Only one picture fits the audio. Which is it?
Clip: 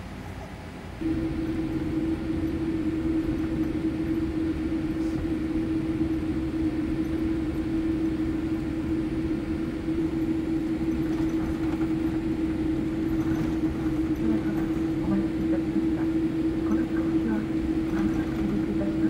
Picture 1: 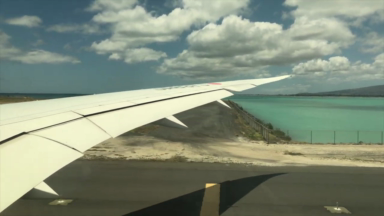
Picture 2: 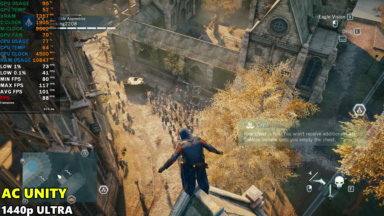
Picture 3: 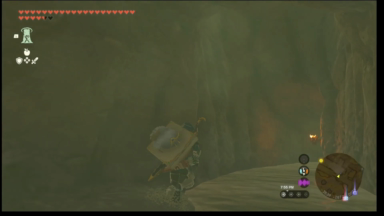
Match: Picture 1